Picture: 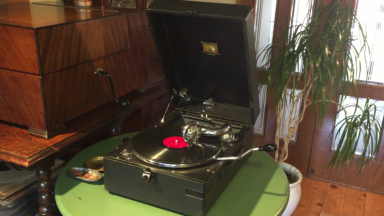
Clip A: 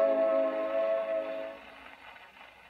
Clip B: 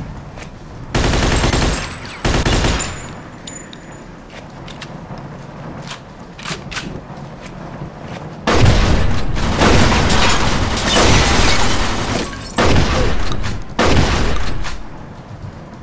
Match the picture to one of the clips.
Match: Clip A